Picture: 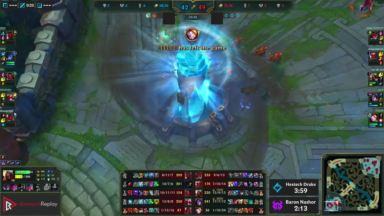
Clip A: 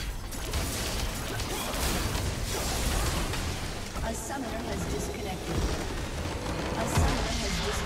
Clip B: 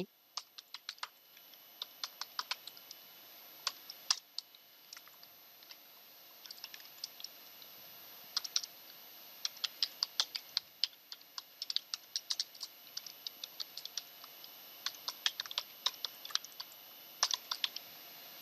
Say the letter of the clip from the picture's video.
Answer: A